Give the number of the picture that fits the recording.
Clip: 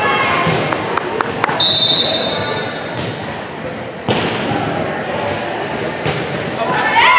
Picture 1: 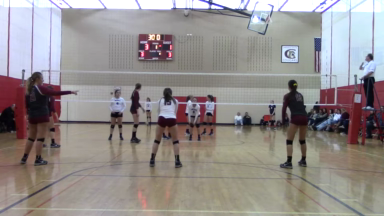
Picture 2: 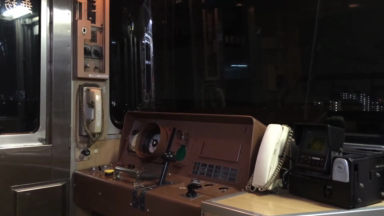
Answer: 1